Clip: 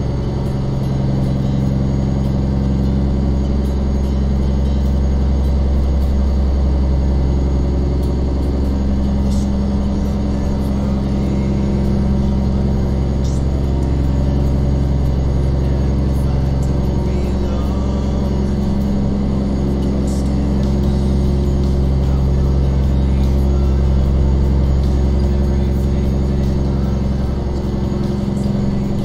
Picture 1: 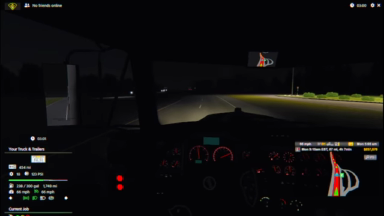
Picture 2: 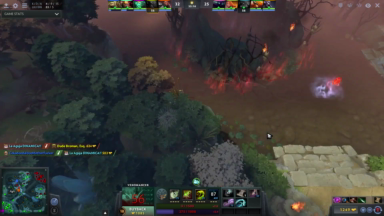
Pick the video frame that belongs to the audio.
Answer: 1